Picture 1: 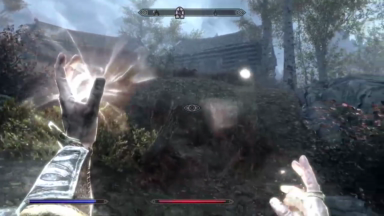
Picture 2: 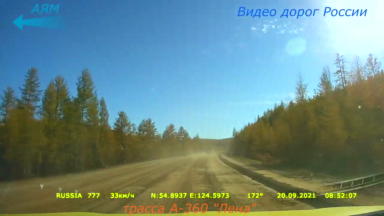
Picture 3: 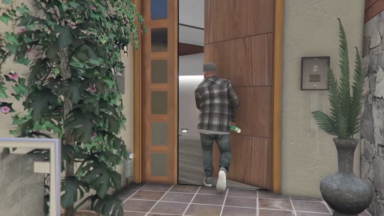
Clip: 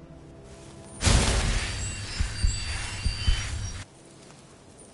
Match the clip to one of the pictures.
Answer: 1